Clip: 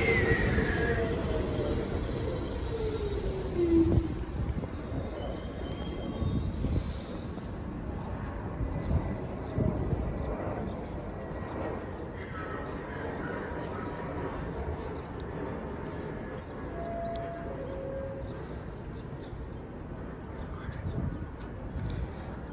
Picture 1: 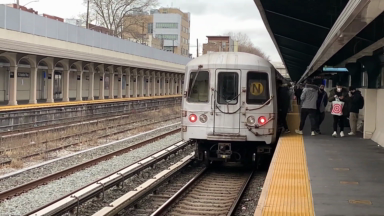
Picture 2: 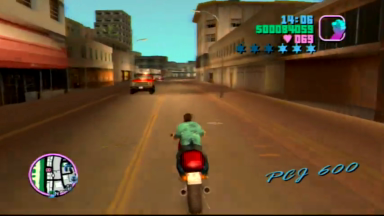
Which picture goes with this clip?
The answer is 1